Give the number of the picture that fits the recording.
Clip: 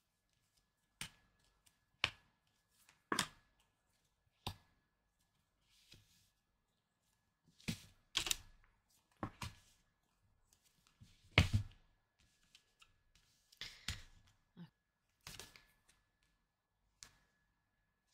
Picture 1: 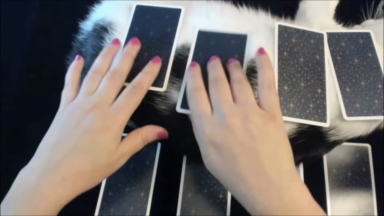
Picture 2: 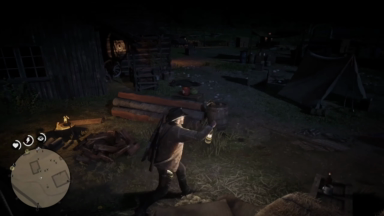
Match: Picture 1